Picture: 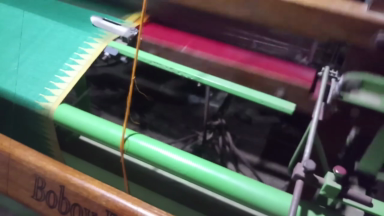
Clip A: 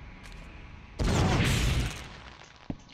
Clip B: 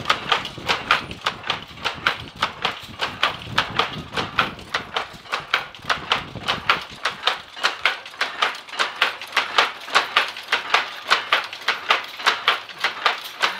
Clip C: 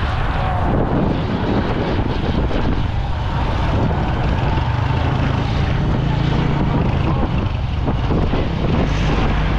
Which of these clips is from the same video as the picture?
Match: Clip B